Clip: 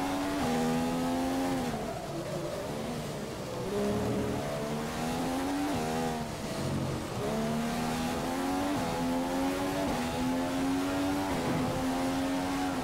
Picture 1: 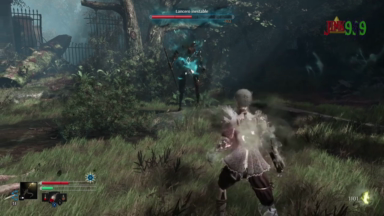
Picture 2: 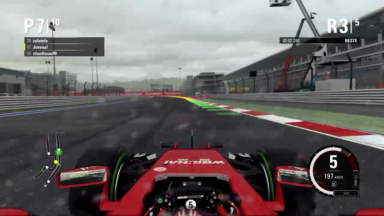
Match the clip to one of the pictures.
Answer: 2